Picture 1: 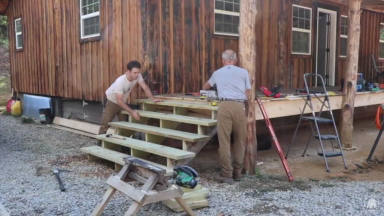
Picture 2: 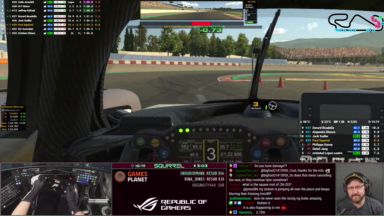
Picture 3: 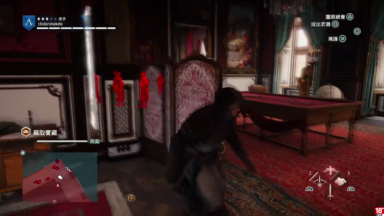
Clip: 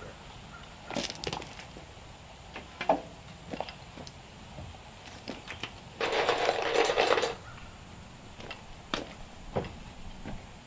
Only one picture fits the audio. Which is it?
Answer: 1